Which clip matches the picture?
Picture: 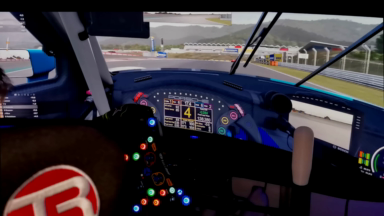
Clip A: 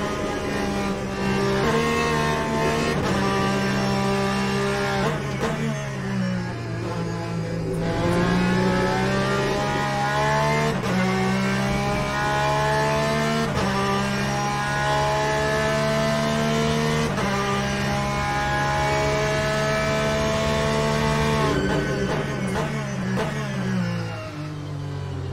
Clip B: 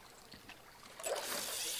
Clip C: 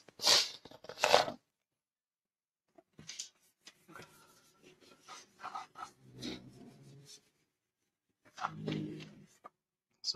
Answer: A